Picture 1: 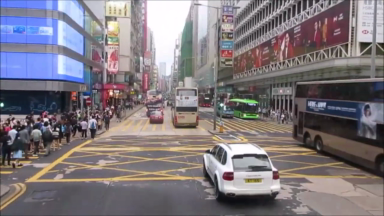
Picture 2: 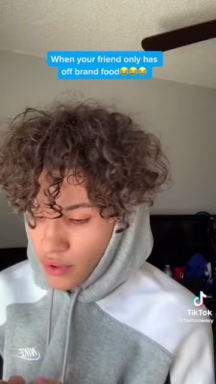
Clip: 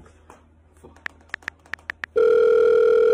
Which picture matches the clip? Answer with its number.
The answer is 2